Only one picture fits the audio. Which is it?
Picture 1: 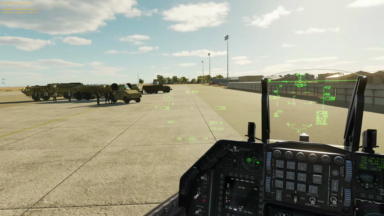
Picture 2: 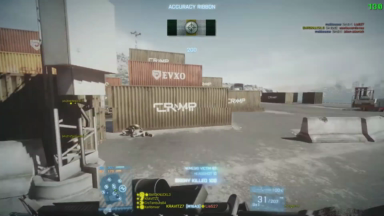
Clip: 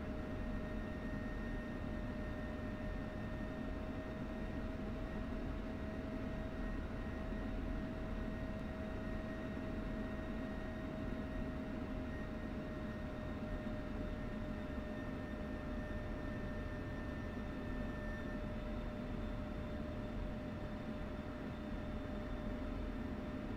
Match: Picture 1